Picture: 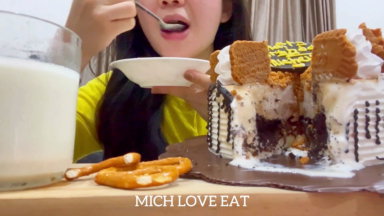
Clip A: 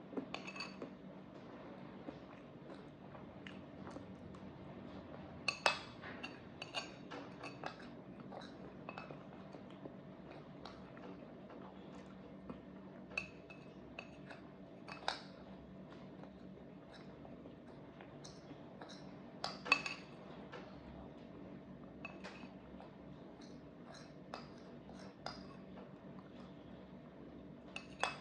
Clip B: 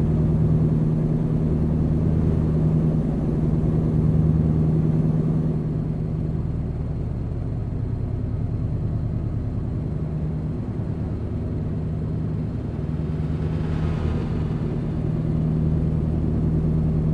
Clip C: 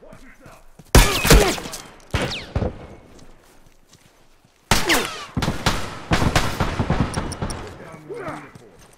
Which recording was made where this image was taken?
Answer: A